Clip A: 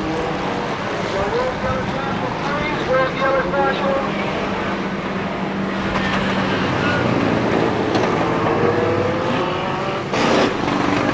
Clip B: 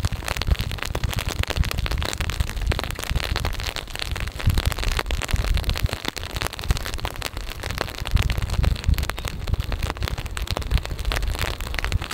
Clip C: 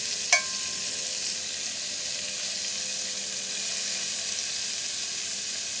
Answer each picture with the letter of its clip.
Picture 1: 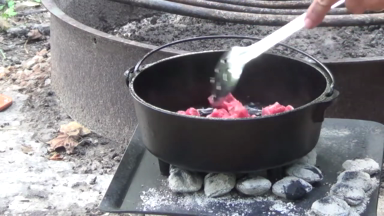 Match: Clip C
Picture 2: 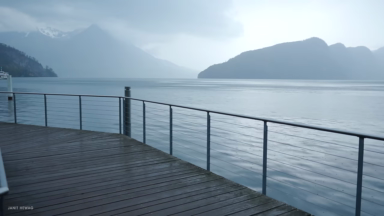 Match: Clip B